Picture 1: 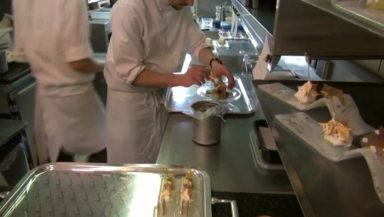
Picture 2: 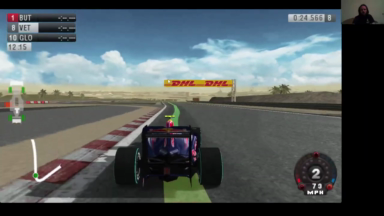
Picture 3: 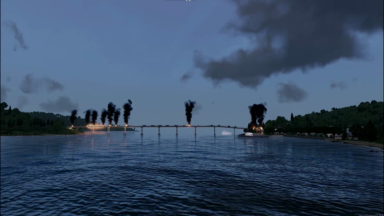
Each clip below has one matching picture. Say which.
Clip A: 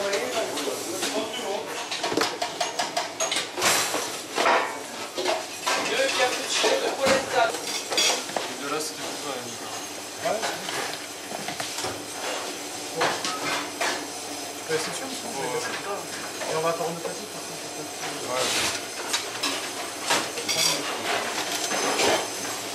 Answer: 1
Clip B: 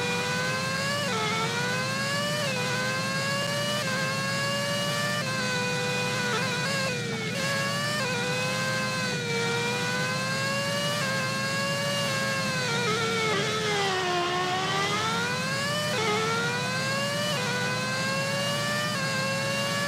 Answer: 2